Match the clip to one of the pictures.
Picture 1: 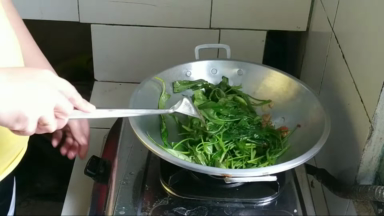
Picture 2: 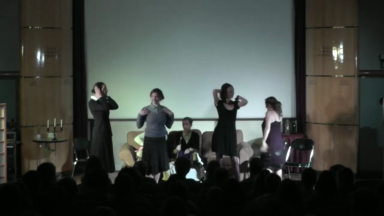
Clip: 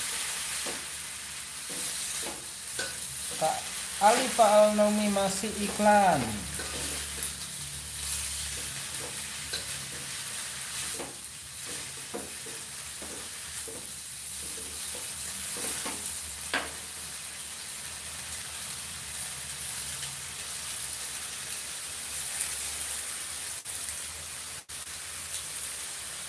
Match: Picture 1